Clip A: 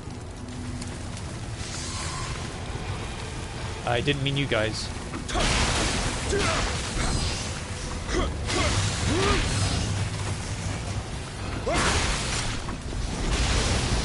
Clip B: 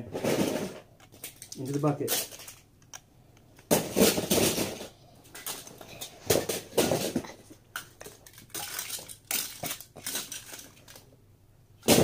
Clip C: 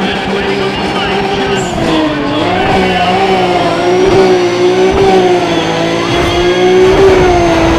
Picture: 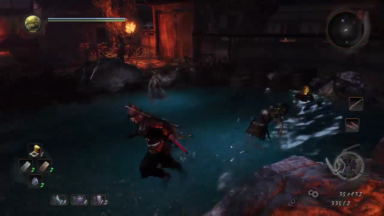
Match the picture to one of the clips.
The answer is A